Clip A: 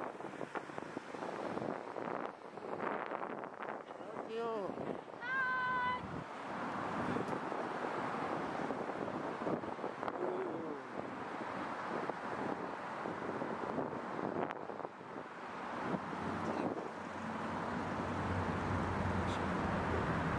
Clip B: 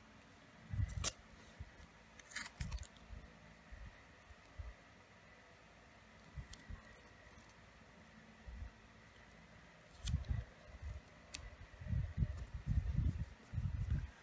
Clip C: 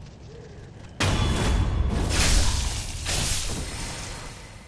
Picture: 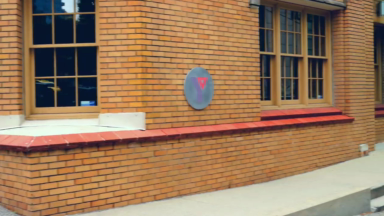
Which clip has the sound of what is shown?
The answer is A